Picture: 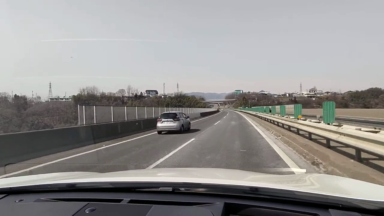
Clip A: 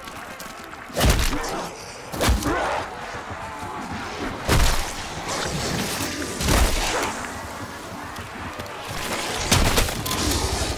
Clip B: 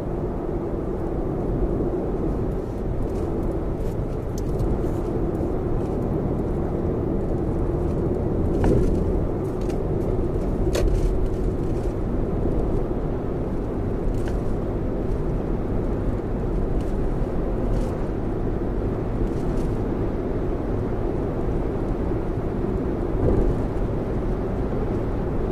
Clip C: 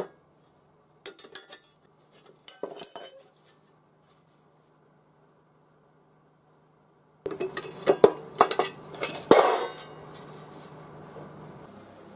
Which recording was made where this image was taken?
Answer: B